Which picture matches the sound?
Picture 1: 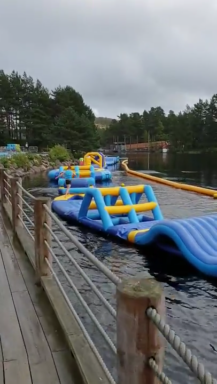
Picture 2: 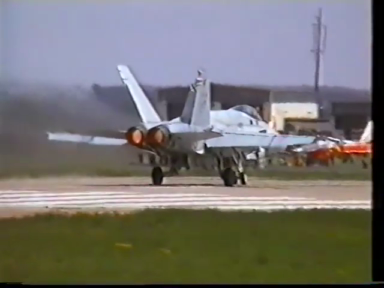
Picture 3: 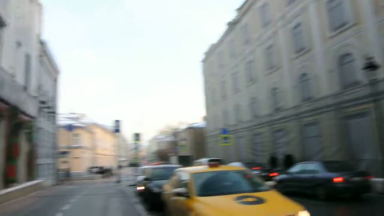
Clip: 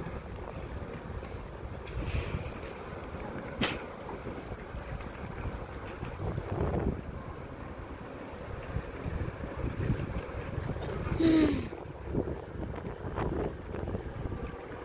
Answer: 1